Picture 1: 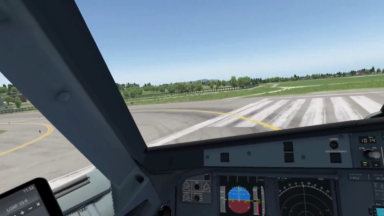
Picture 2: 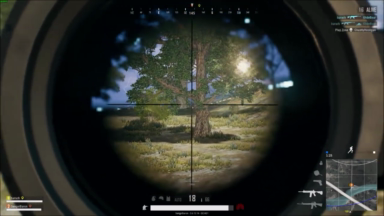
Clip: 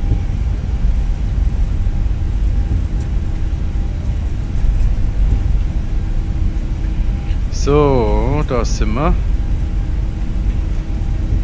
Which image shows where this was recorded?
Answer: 1